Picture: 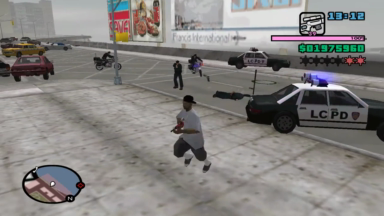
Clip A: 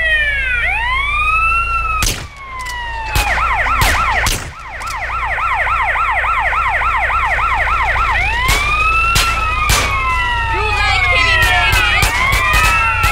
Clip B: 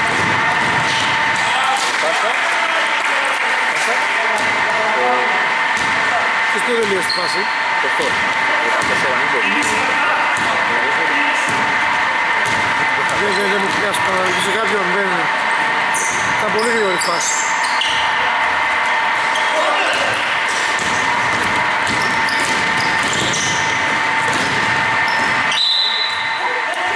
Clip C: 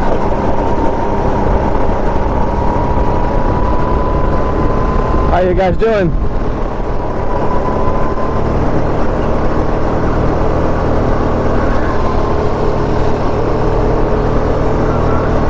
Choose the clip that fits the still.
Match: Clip A